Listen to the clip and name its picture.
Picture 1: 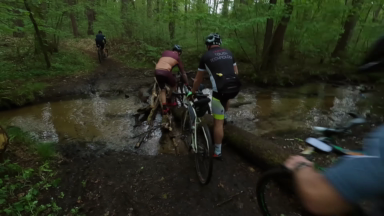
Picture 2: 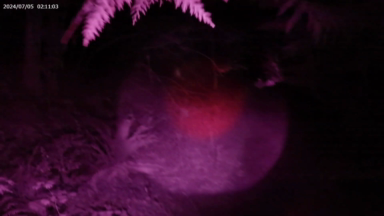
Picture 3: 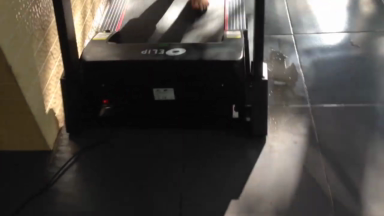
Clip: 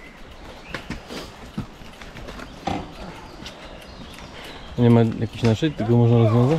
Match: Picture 1